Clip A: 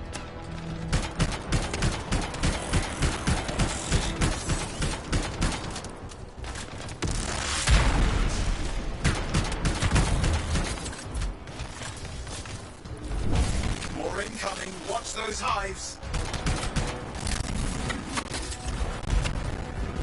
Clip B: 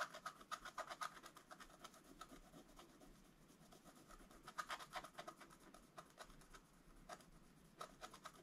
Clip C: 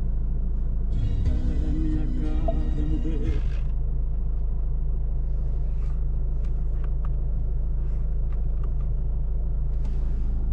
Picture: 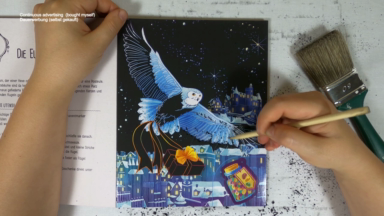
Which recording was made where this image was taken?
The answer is B